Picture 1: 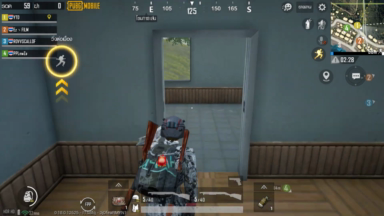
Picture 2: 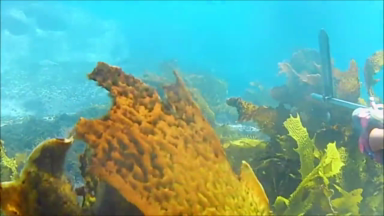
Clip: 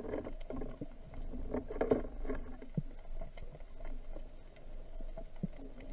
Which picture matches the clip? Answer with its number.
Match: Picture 2